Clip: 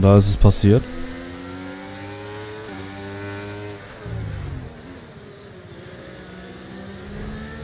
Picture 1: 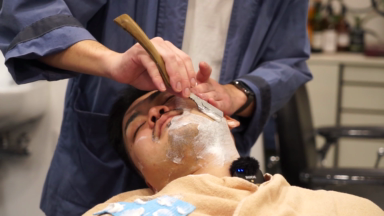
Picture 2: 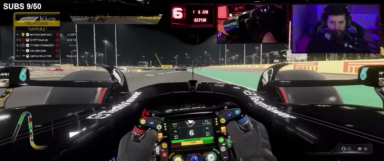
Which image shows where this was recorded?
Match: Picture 2